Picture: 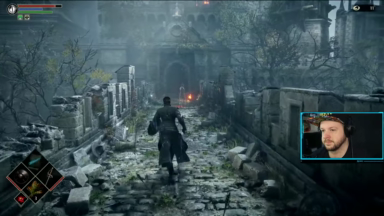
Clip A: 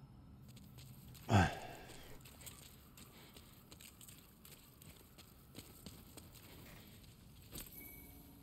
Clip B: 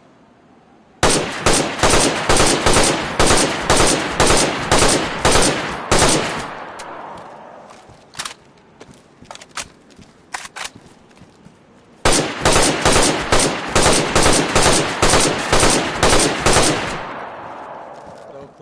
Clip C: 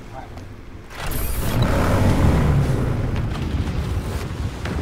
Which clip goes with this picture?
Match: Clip A